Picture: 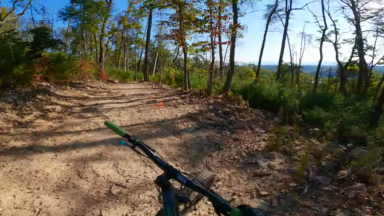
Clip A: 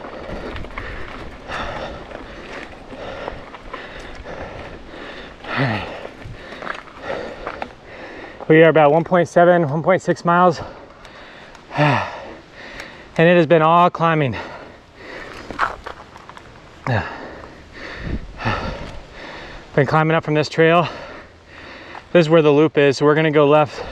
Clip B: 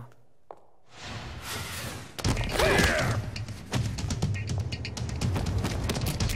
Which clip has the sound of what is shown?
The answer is A